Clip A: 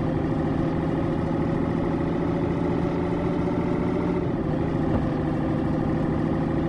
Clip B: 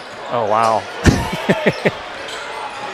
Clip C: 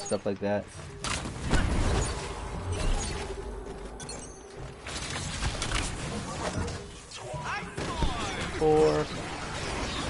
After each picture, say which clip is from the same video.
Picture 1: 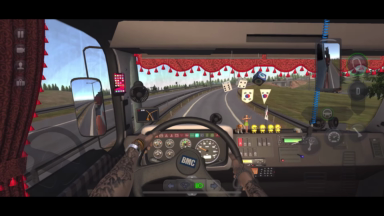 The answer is A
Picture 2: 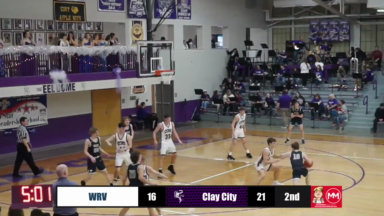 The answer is B